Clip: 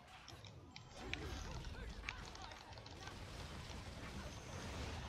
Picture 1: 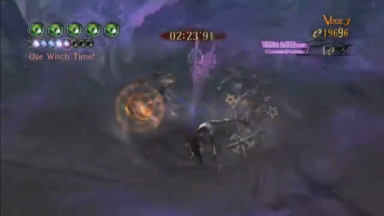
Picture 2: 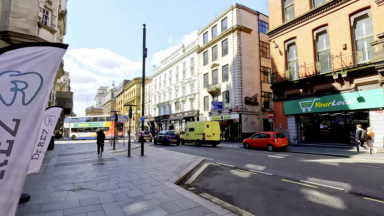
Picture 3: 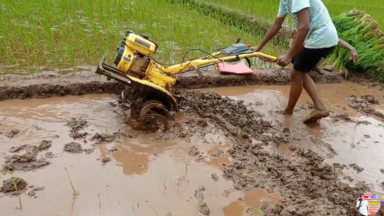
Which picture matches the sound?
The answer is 1